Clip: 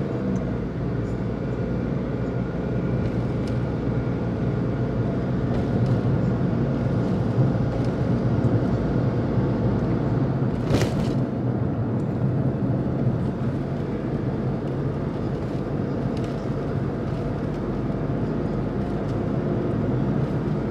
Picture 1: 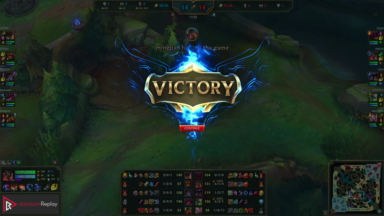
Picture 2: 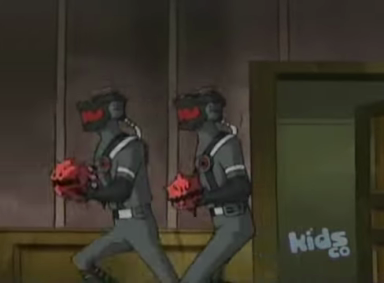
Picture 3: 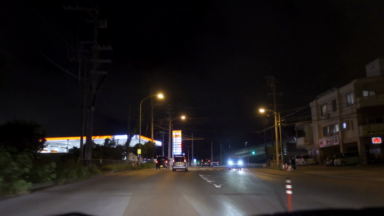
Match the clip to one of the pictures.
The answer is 3